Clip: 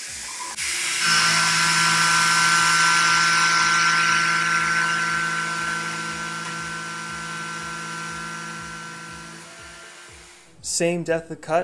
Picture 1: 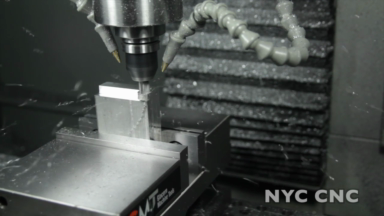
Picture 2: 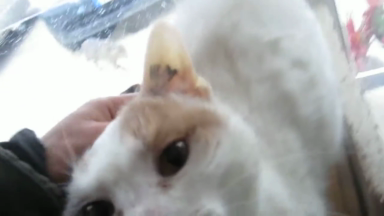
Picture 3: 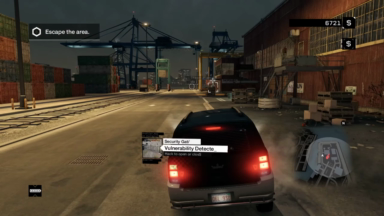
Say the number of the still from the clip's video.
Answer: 1